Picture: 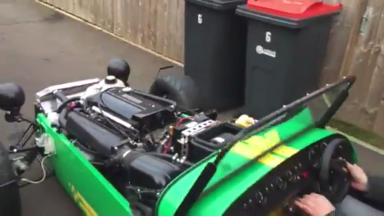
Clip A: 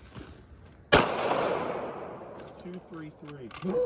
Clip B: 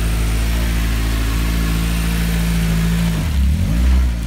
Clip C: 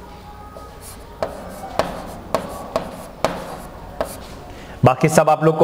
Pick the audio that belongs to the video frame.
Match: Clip B